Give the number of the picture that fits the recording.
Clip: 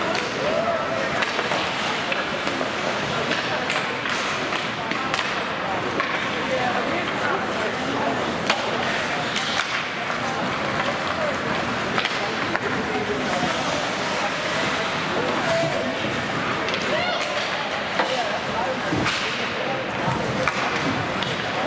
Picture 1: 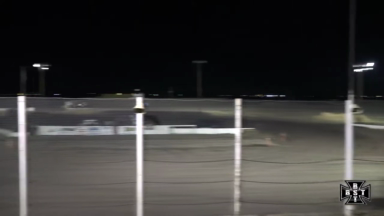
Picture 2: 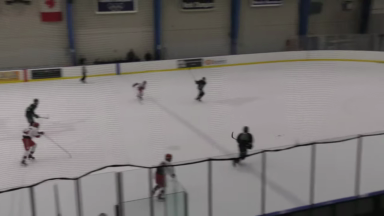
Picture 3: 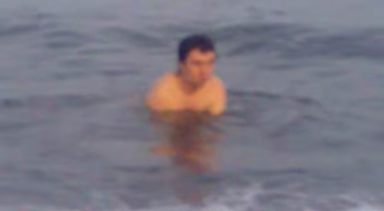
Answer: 2